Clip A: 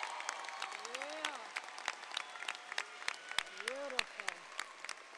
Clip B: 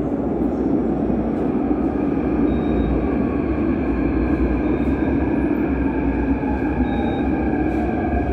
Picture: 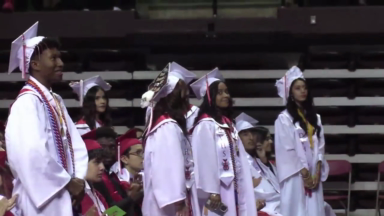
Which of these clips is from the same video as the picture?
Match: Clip A